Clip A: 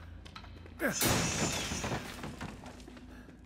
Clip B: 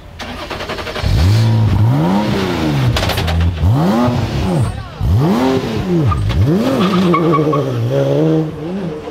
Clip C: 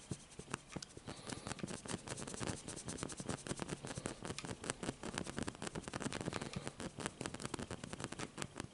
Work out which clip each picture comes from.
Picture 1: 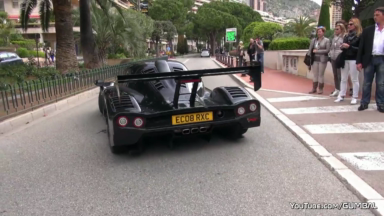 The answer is B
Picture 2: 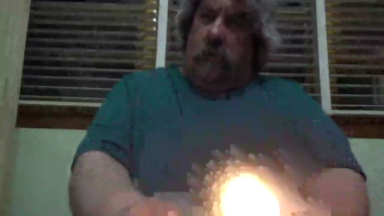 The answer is C